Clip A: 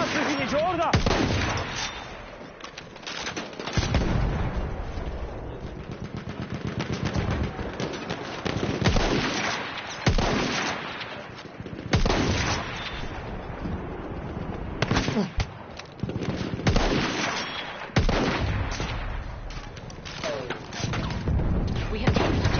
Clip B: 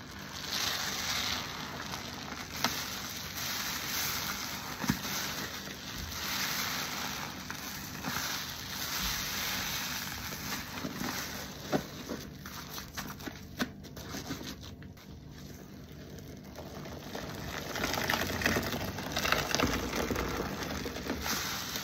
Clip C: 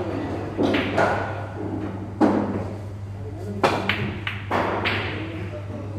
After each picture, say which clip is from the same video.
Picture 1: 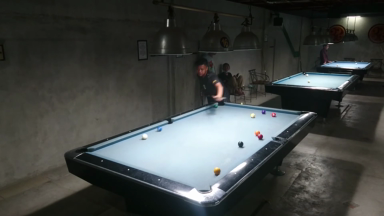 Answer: C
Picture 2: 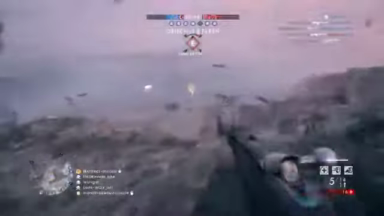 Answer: A